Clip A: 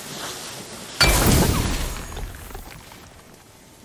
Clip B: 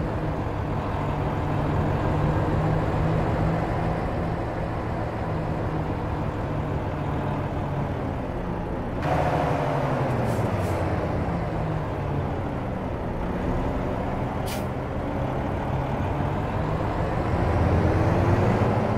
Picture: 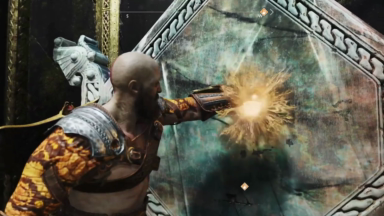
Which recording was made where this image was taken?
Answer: A